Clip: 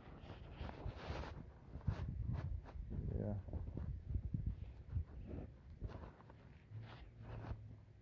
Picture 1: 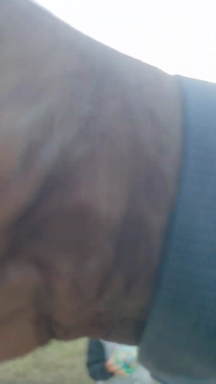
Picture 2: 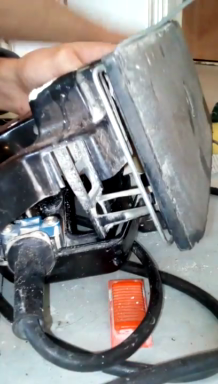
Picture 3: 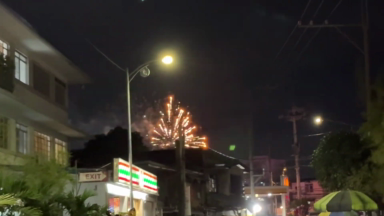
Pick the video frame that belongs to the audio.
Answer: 1